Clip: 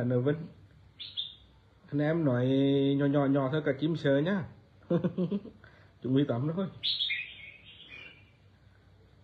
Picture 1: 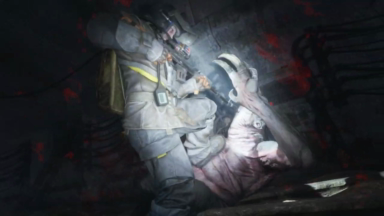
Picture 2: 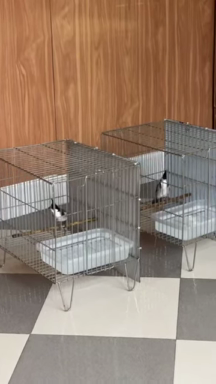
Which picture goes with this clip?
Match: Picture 2